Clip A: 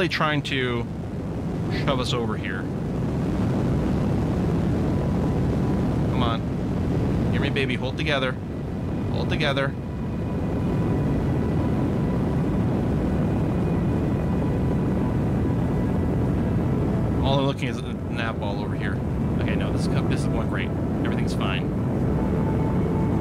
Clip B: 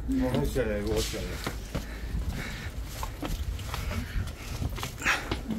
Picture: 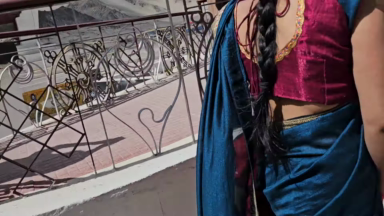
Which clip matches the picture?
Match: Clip B